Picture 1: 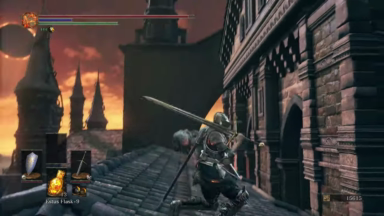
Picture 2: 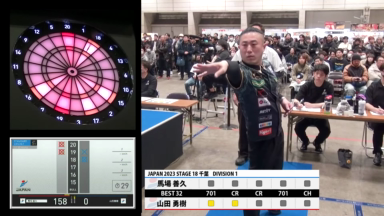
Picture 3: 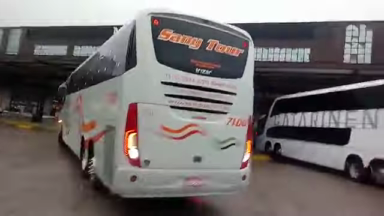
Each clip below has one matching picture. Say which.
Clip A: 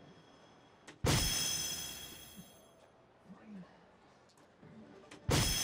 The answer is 2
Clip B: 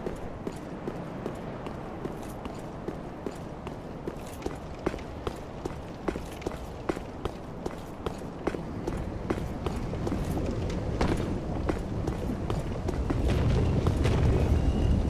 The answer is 1